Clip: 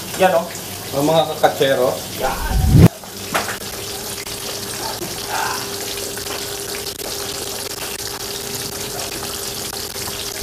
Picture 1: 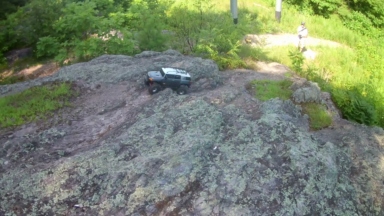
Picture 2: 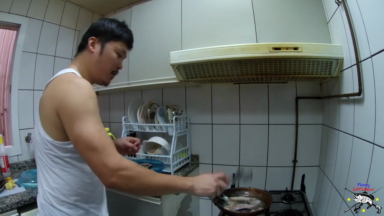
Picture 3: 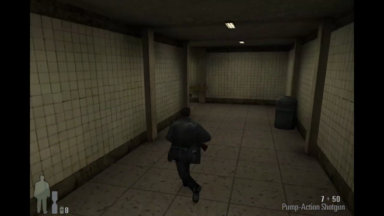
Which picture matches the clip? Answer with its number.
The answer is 2